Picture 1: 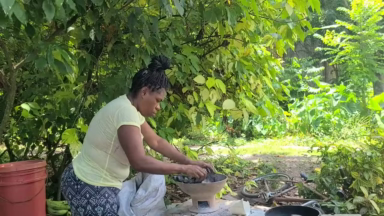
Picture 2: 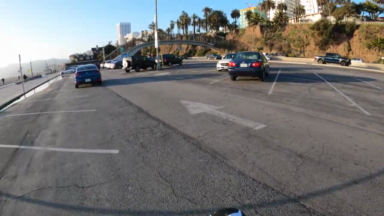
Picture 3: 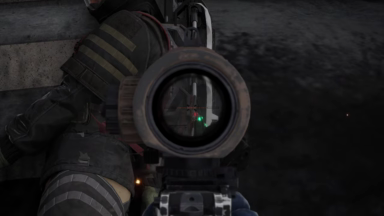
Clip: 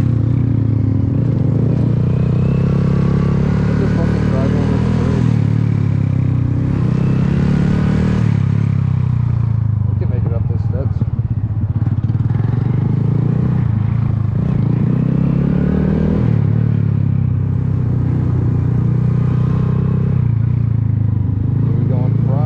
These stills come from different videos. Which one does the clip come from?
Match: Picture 2